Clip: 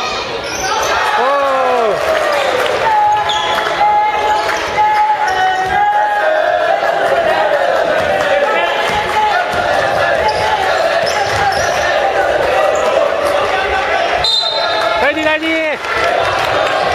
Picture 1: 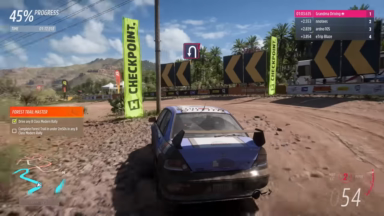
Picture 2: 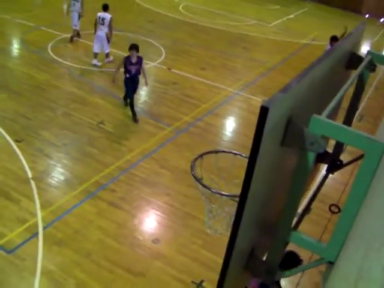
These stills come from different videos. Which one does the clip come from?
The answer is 2